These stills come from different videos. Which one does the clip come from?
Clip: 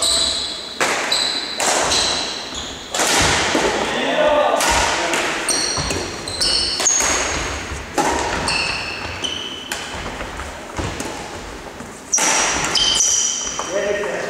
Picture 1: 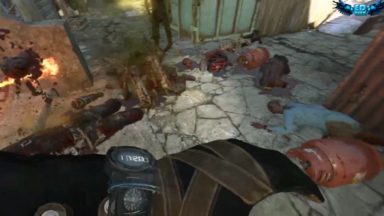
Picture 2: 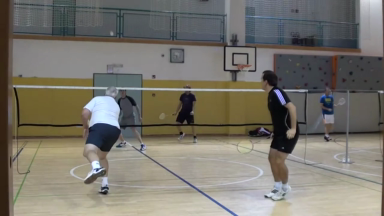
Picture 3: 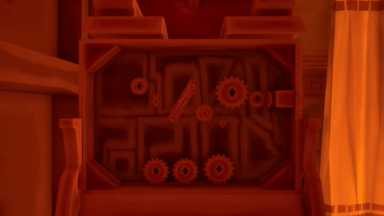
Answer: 2